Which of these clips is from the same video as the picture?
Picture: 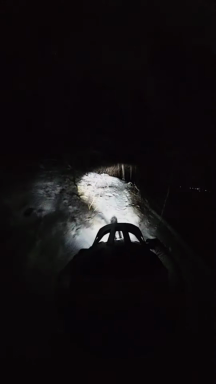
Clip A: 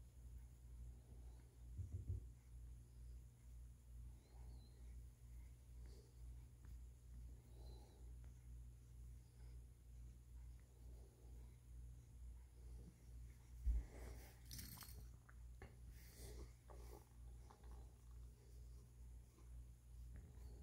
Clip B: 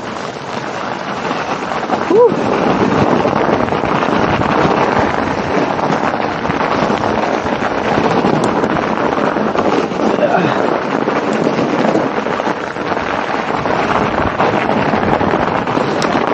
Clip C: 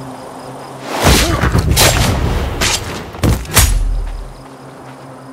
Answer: B